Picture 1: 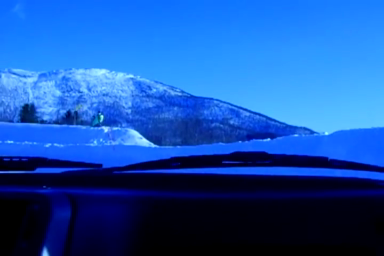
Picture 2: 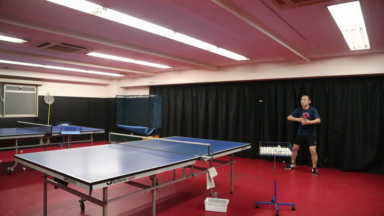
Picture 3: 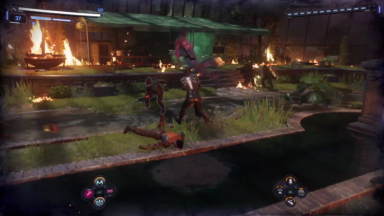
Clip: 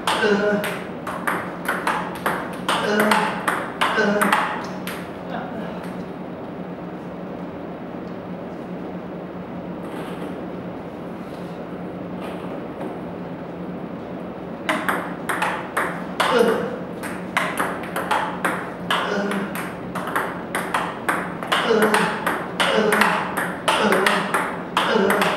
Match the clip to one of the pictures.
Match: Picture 2